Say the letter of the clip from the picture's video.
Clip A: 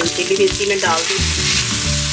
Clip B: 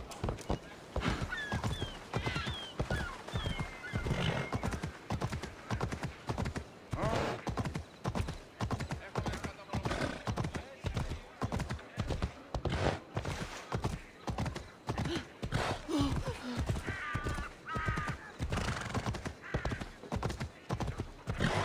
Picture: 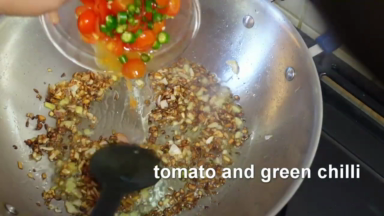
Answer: A